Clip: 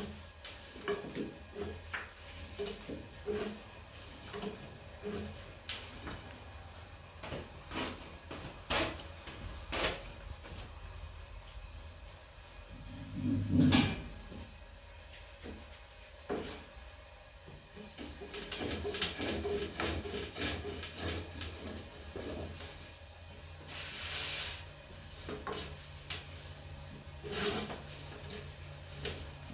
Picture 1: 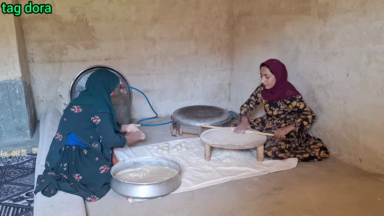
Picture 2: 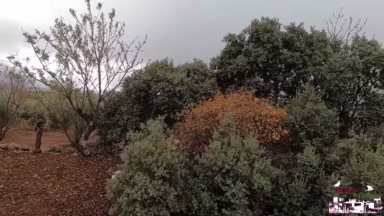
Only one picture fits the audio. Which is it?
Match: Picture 1